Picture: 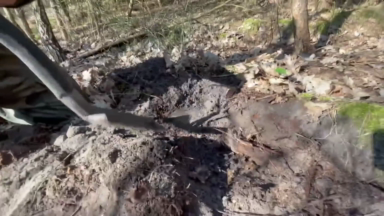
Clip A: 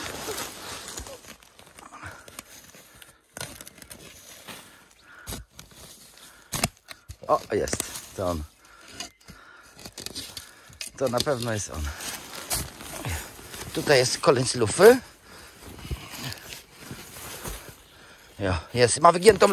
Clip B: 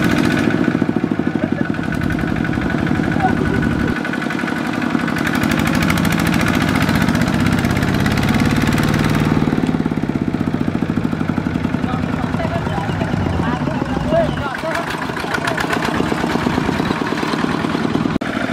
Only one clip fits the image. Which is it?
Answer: A